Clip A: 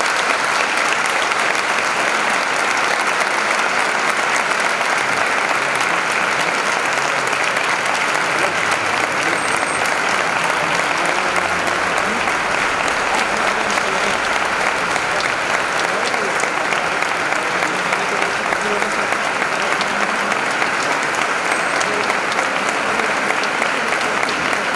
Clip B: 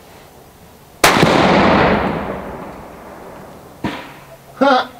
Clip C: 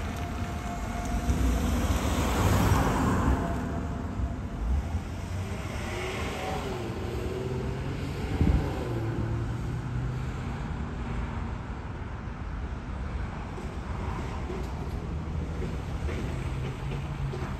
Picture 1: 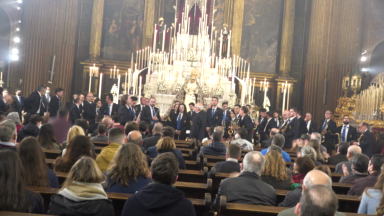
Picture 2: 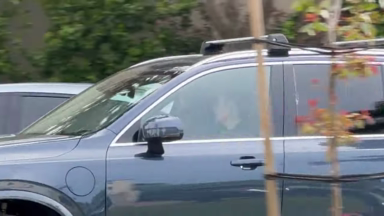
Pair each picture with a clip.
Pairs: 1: A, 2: C